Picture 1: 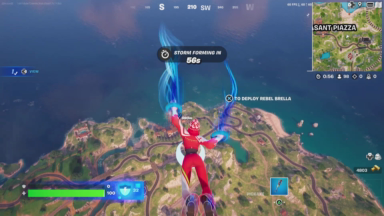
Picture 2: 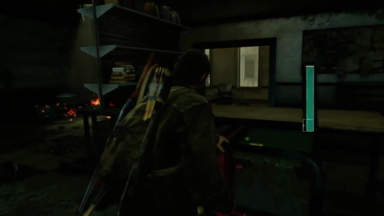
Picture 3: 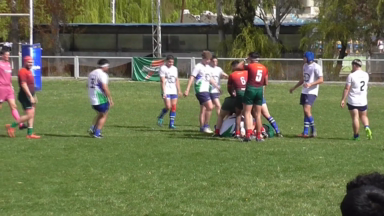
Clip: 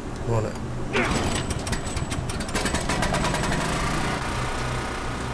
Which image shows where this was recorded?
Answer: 2